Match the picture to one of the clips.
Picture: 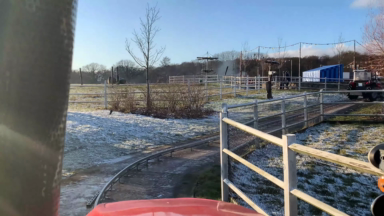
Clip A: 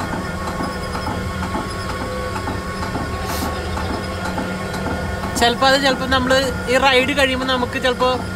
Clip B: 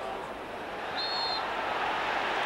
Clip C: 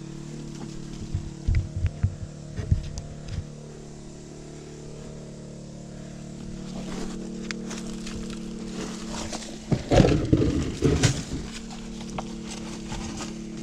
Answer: A